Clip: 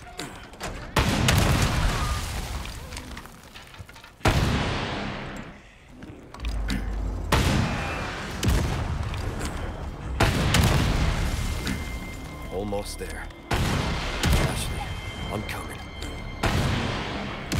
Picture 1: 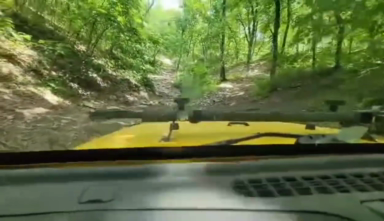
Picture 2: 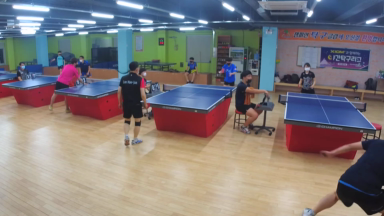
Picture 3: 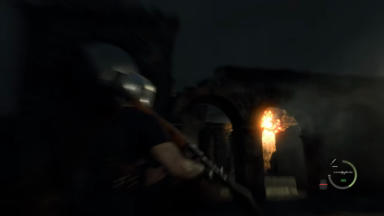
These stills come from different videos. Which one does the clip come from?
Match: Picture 3